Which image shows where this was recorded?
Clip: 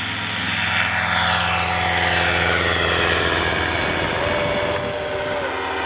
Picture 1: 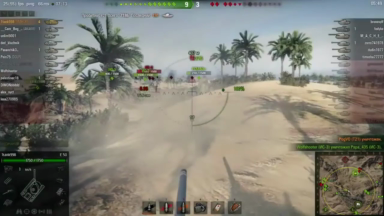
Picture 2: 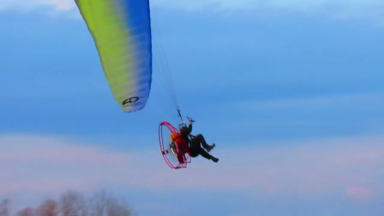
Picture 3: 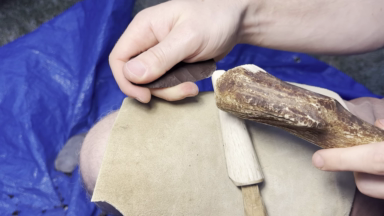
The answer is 2